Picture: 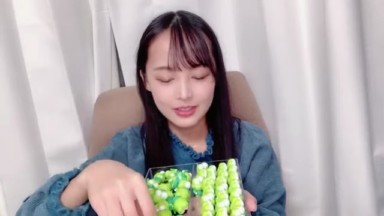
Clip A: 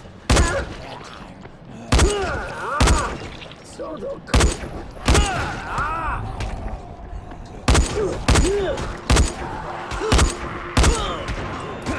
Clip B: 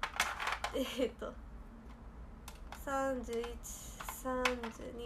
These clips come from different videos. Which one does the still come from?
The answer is B